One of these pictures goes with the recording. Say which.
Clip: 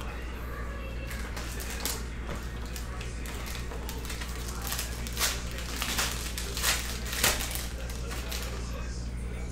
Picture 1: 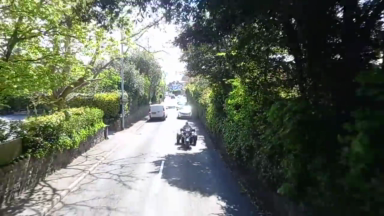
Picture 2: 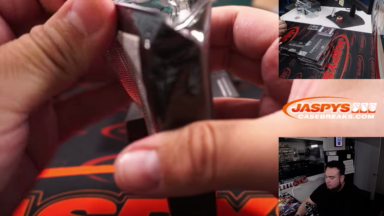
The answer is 2